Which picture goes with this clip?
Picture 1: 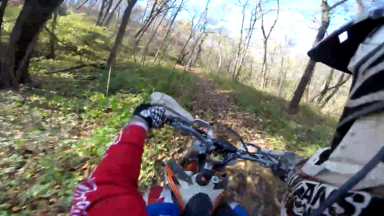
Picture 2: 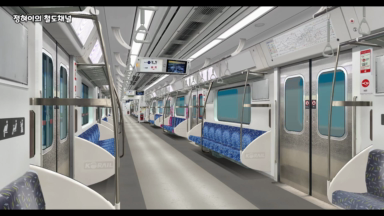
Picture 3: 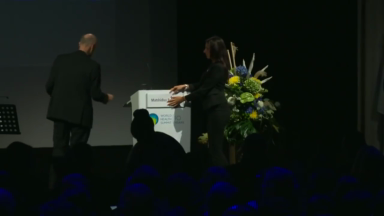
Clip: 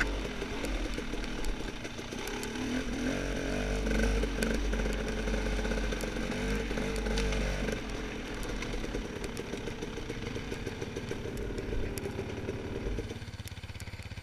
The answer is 1